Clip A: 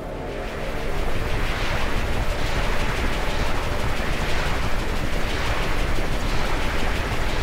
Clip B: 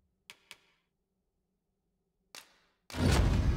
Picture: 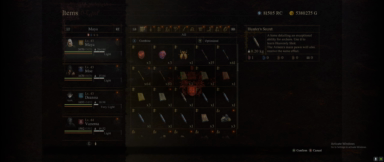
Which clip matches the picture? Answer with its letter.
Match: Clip B